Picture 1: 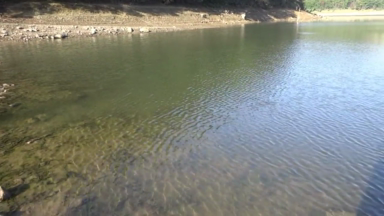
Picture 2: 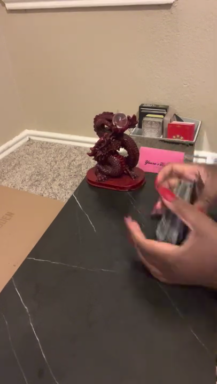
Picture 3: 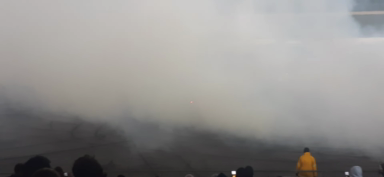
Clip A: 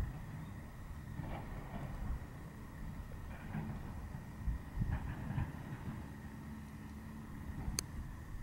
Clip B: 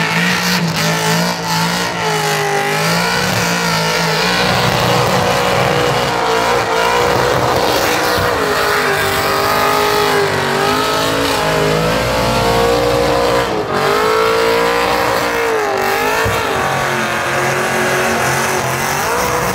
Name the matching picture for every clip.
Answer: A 1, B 3